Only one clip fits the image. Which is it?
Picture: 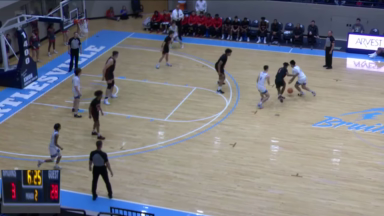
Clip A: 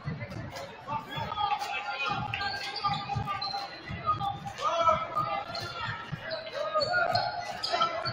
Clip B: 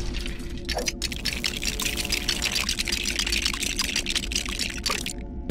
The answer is A